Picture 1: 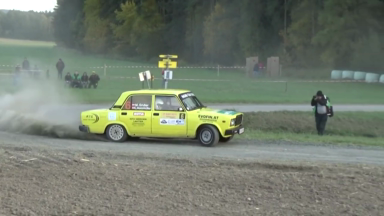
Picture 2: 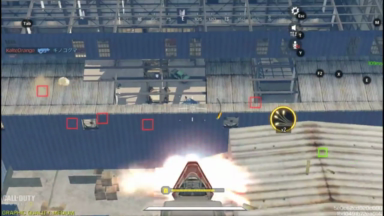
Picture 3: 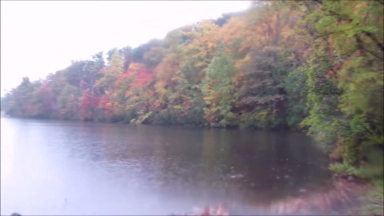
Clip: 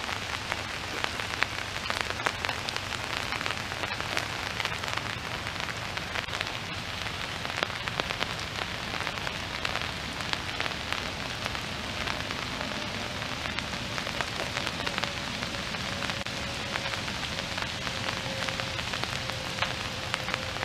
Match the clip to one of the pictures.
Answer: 3